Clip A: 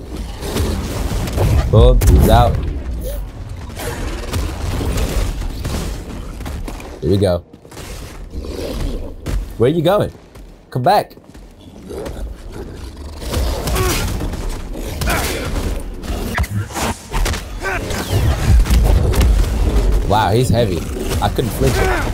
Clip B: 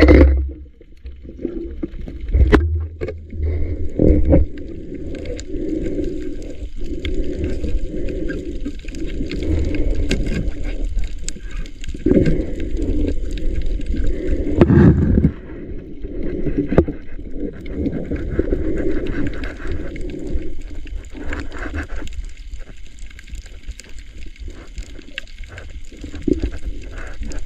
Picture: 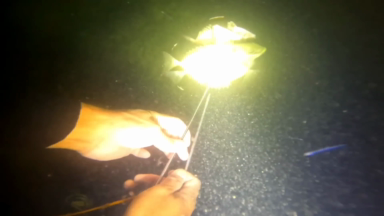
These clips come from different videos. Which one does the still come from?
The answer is B